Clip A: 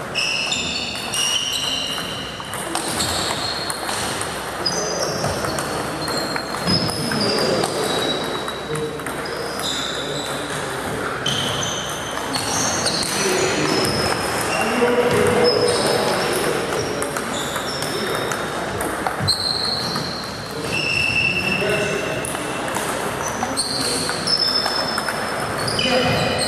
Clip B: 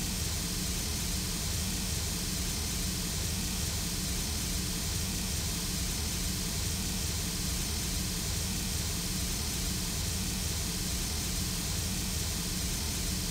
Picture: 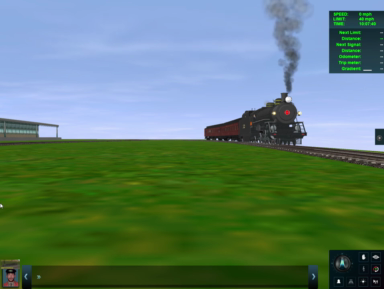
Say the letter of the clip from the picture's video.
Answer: B